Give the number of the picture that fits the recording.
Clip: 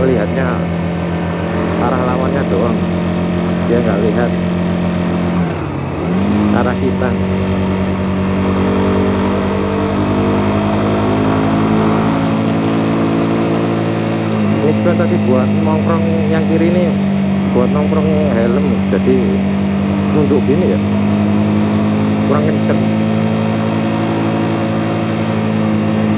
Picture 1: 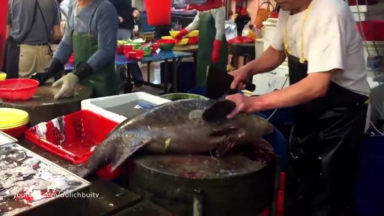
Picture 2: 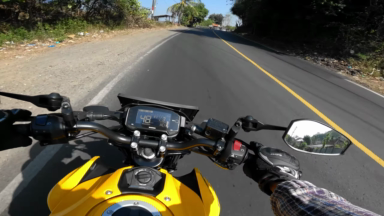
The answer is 2